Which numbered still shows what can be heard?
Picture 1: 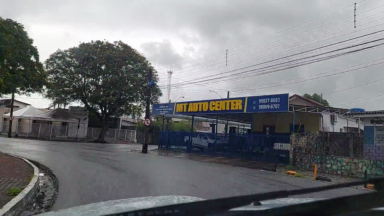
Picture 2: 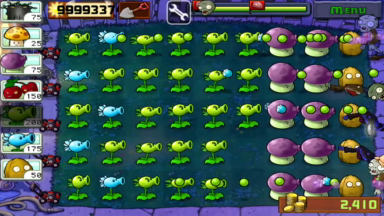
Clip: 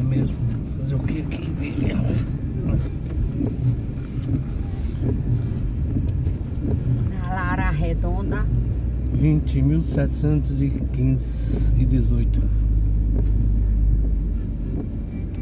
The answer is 1